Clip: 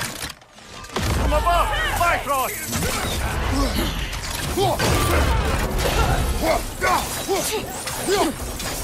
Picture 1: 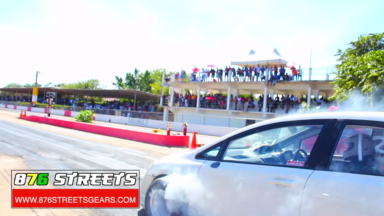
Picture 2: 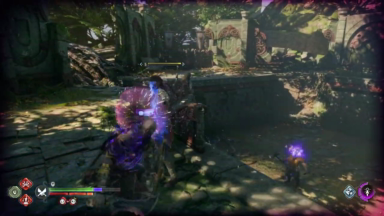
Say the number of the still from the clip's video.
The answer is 2